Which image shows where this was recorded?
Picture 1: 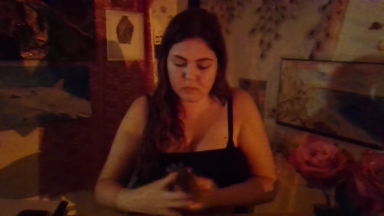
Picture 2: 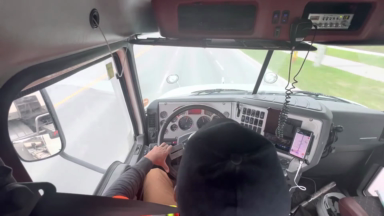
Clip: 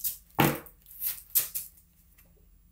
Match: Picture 1